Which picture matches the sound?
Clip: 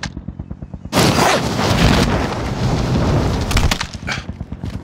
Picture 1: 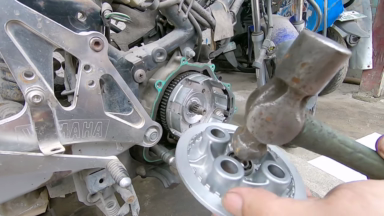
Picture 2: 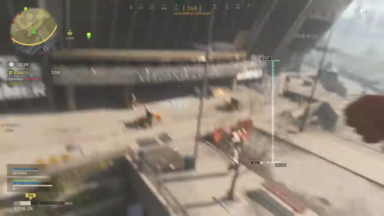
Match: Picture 2